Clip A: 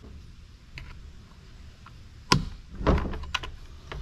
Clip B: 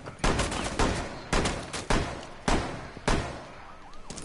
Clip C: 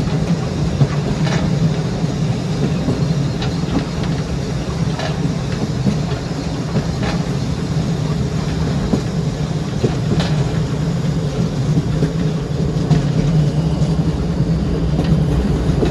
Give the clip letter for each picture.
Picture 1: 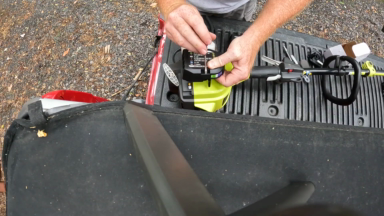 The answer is A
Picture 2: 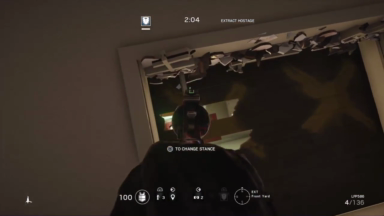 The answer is B